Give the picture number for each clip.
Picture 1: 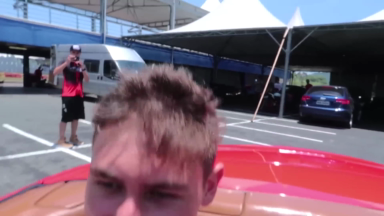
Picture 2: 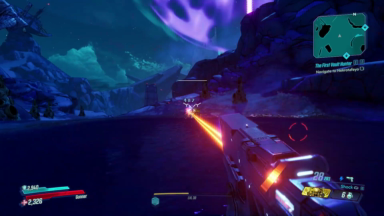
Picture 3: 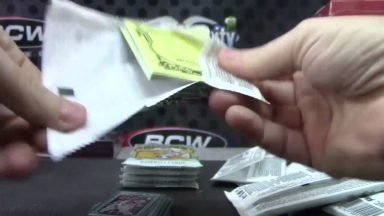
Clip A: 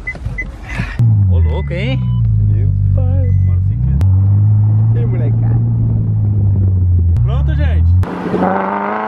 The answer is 1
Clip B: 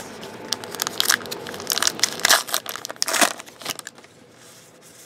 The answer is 3